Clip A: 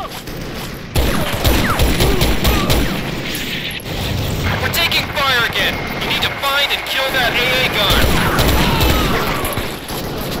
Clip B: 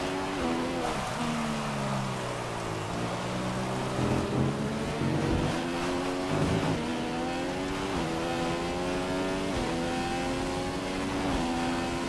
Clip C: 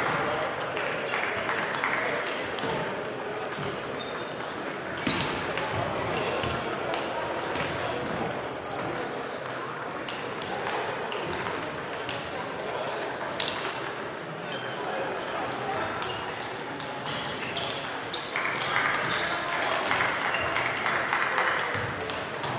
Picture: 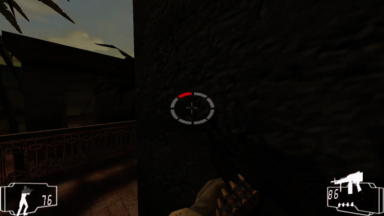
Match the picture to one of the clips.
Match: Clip A